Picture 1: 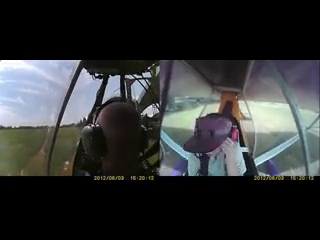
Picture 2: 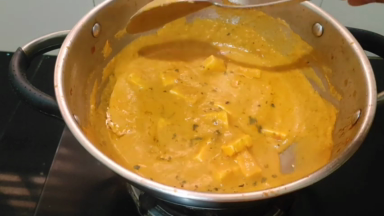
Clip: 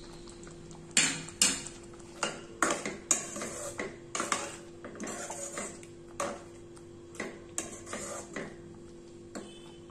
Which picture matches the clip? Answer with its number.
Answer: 2